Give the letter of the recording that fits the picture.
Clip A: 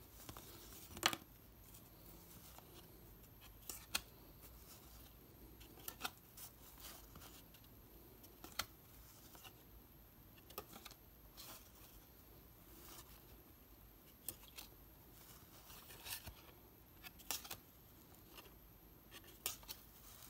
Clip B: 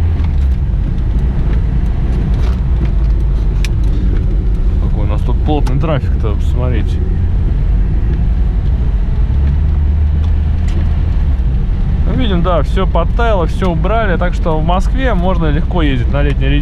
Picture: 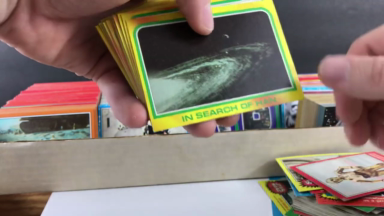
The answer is A